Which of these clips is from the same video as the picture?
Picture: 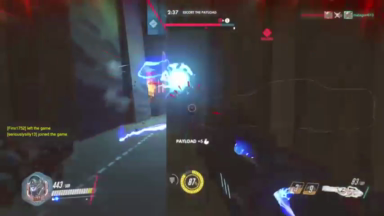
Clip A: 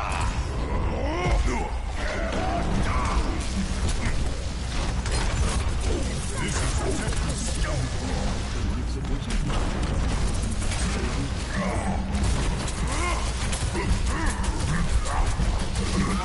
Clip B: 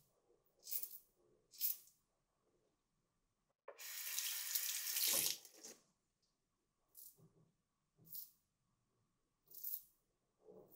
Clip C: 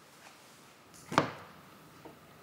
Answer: A